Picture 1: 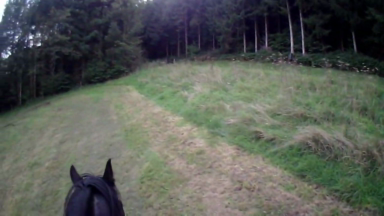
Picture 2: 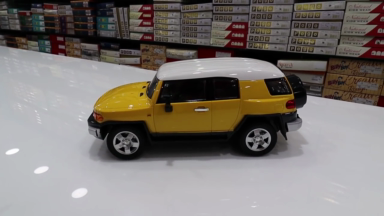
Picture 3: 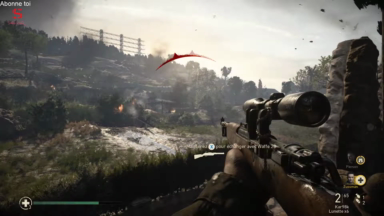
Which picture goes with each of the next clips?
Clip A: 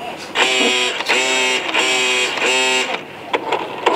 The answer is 2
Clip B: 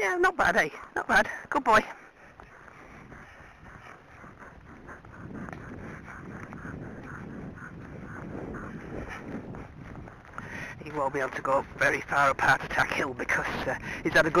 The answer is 1